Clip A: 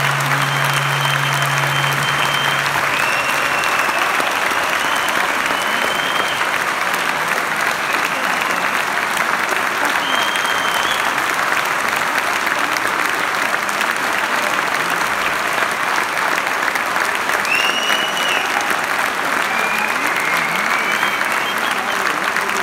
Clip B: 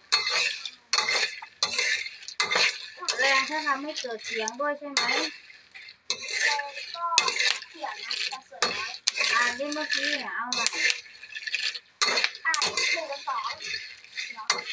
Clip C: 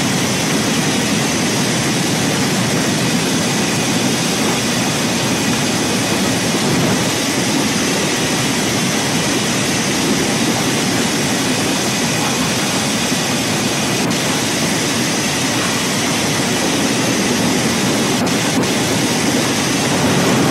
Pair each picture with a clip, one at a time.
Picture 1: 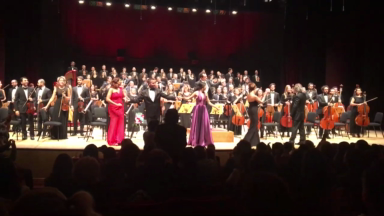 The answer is A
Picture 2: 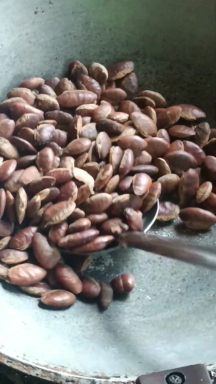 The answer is B